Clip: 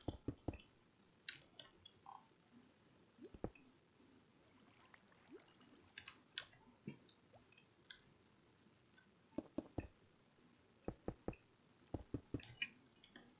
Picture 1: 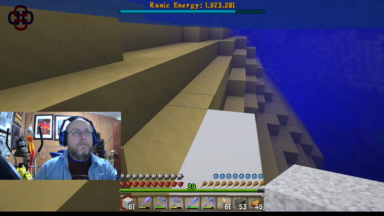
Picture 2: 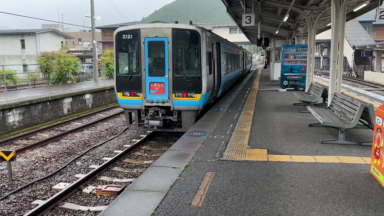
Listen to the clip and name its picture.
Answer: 1